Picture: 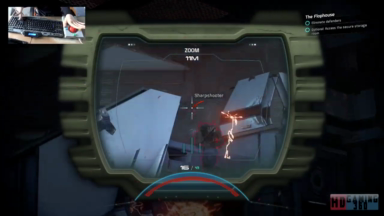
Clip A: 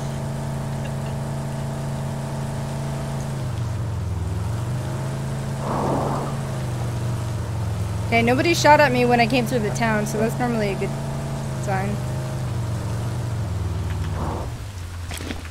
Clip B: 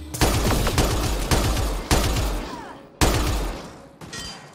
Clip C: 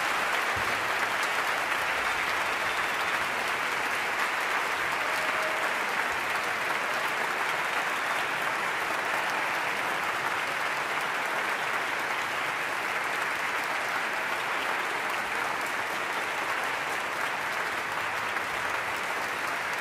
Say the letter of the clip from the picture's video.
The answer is B